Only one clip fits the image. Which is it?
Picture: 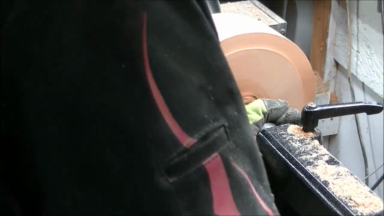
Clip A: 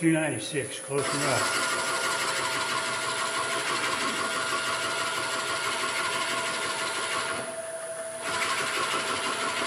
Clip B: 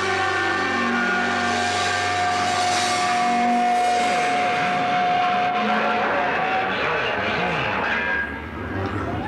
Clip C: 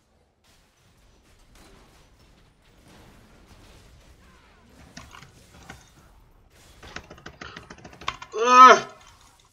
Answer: A